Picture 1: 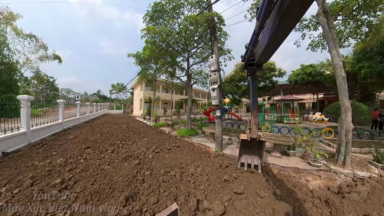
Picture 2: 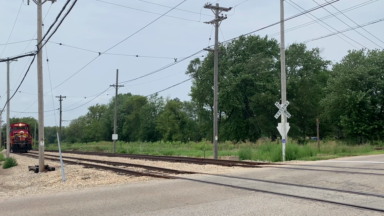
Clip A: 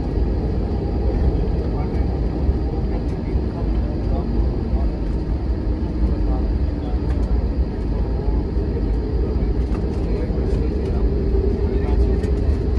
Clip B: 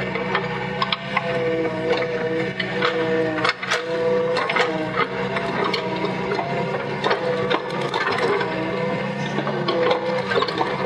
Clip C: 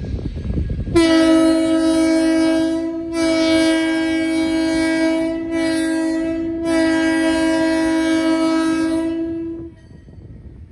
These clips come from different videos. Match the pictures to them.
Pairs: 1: B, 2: C